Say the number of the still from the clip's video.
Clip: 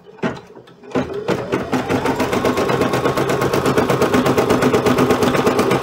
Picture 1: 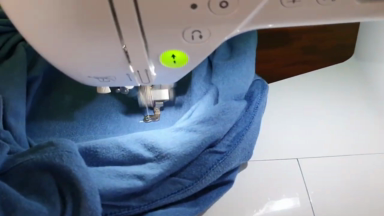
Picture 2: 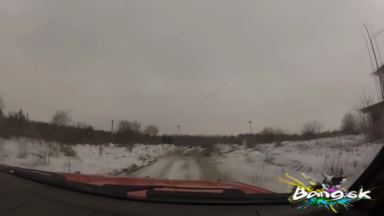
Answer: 1